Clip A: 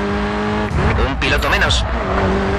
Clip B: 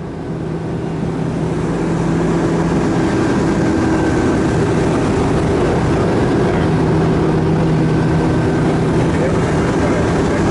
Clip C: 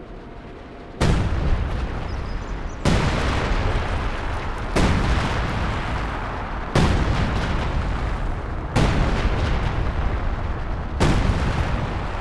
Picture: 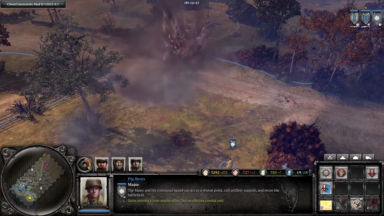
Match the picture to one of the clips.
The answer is C